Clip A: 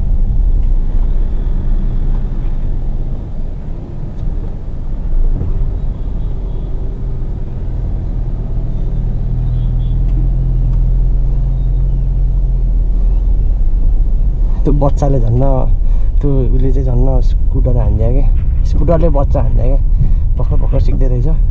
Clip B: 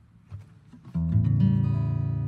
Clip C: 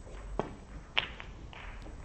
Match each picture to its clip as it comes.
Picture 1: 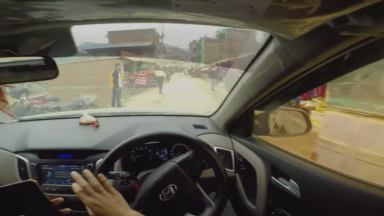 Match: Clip A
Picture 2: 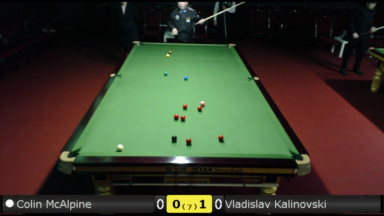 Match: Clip C